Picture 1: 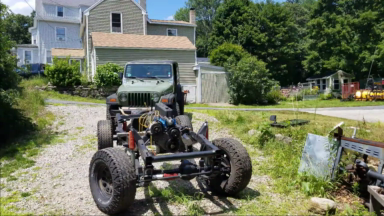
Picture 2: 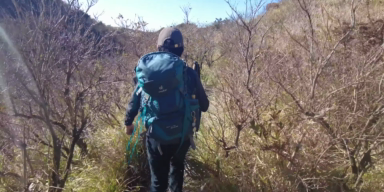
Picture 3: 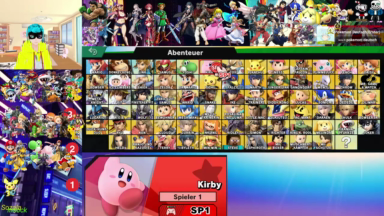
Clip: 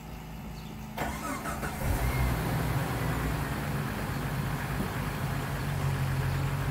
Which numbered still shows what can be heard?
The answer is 1